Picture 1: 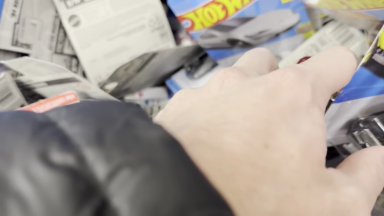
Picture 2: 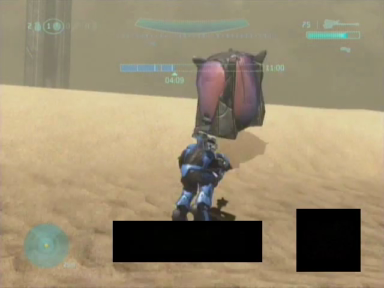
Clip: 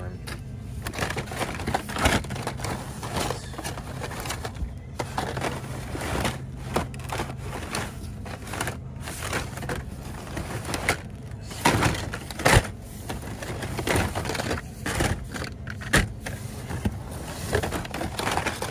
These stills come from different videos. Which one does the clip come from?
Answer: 1